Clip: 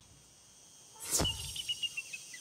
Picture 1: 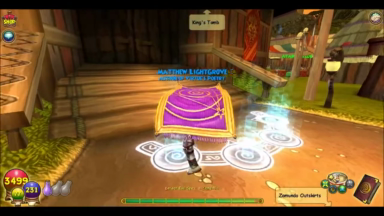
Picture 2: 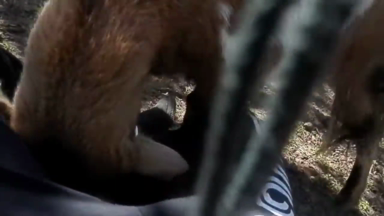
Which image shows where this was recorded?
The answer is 1